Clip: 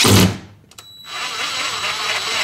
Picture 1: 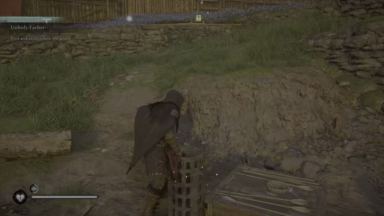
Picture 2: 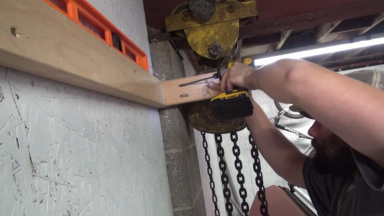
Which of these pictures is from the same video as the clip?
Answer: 2